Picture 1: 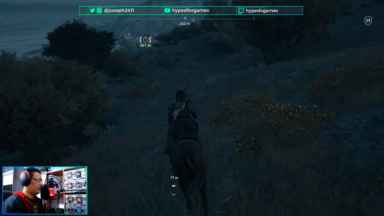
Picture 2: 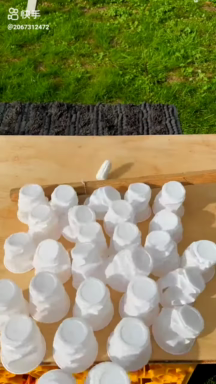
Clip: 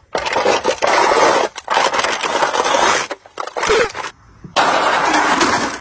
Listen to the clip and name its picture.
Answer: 2